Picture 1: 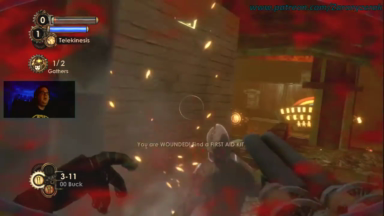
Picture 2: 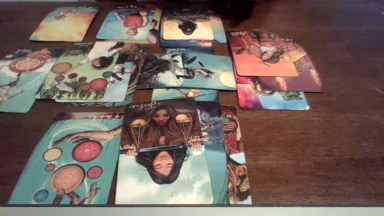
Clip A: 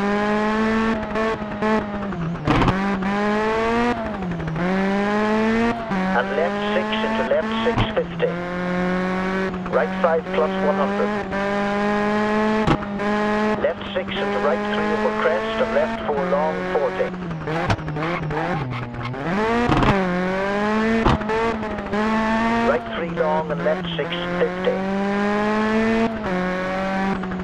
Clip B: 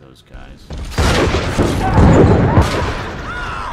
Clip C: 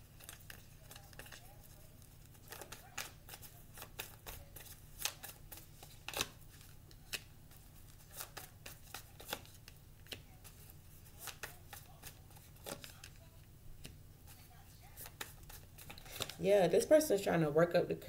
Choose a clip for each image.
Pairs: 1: B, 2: C